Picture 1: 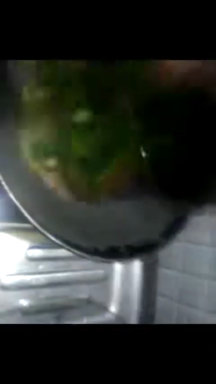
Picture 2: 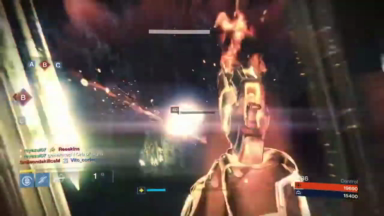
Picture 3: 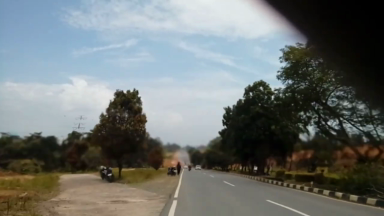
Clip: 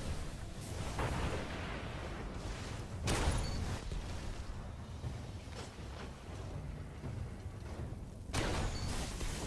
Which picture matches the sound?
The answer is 2